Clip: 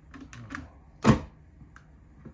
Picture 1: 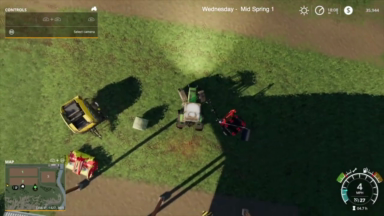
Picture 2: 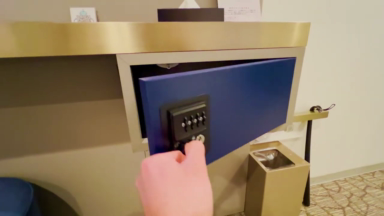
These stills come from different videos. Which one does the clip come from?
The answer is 2